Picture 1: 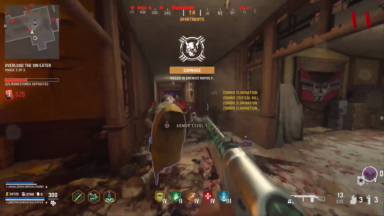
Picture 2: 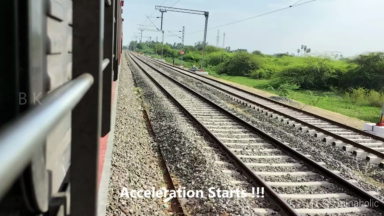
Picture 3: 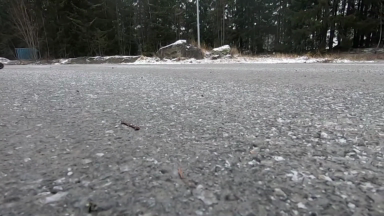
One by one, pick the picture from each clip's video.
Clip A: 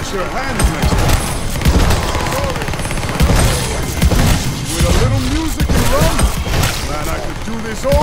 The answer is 1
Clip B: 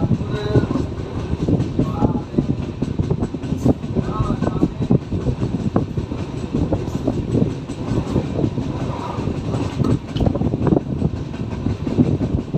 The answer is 2